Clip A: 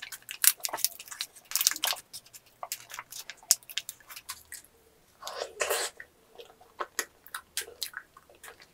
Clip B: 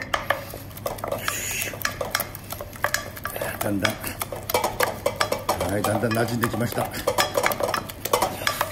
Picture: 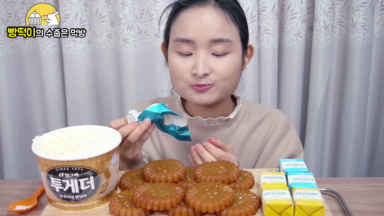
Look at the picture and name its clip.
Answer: A